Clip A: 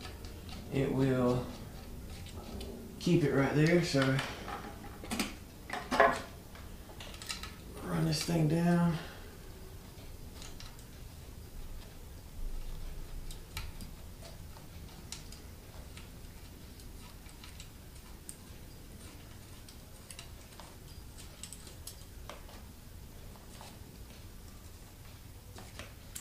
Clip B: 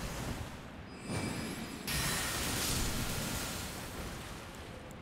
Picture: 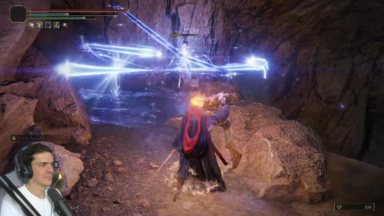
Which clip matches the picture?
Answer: B